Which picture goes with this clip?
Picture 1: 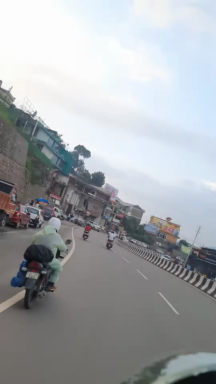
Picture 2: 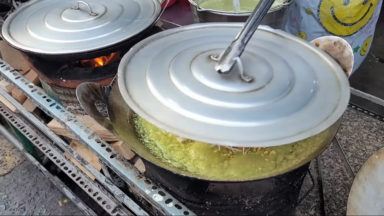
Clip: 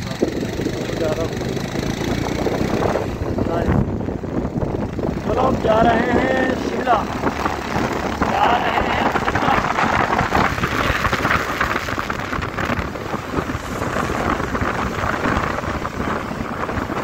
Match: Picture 1